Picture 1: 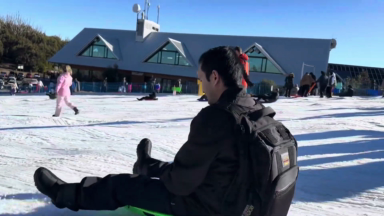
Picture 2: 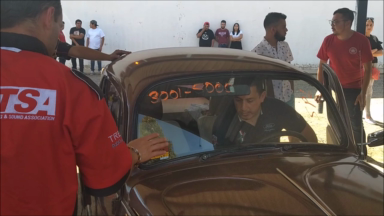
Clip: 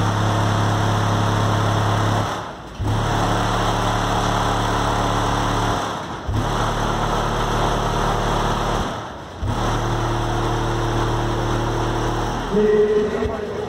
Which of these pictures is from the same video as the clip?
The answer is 2